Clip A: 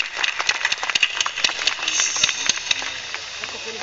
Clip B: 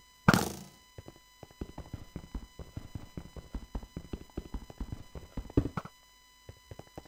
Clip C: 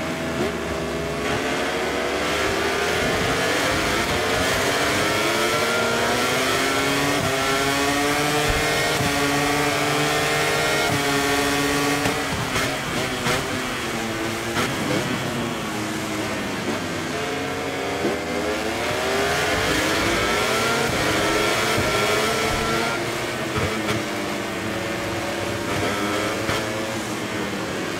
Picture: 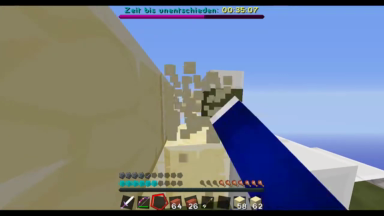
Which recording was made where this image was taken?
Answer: B